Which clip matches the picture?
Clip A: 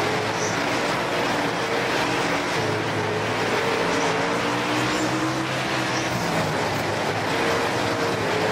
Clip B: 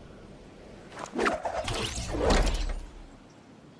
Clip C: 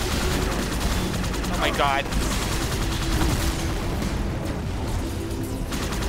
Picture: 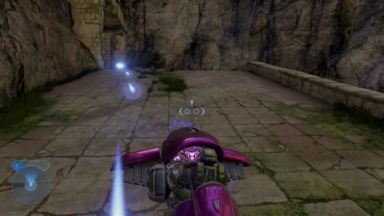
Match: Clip C